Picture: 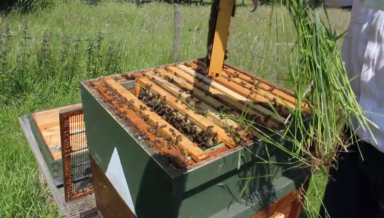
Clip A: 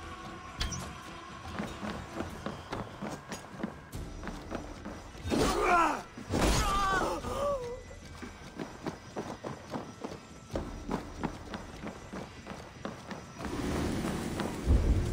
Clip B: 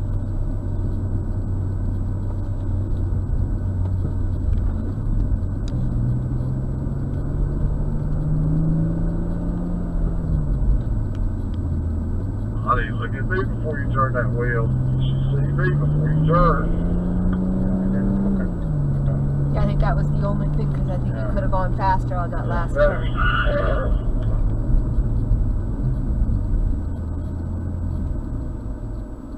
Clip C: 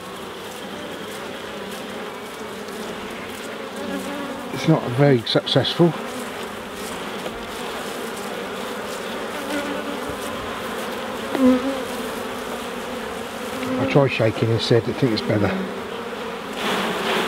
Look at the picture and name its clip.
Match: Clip C